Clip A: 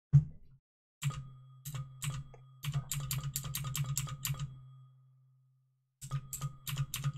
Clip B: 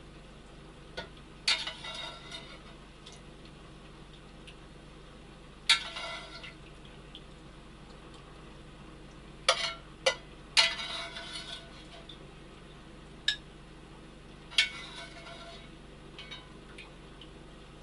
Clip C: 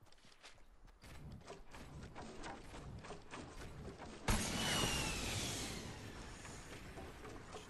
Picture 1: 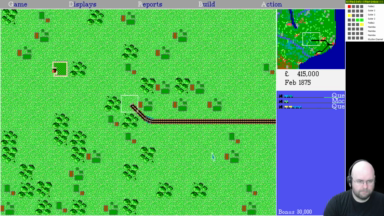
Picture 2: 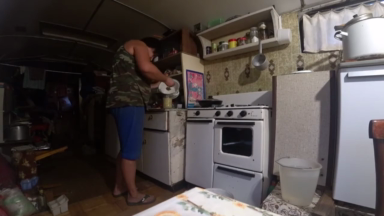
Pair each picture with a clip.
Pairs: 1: A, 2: B